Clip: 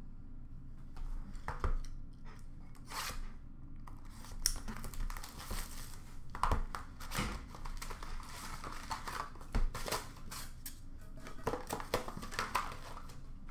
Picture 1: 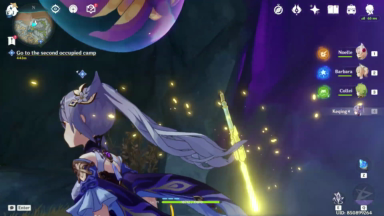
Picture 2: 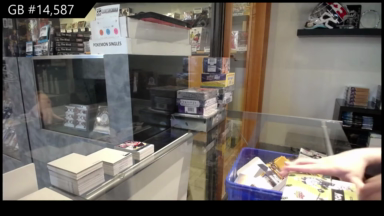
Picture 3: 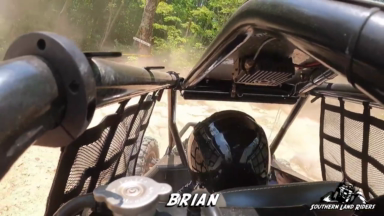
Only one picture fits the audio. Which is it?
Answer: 2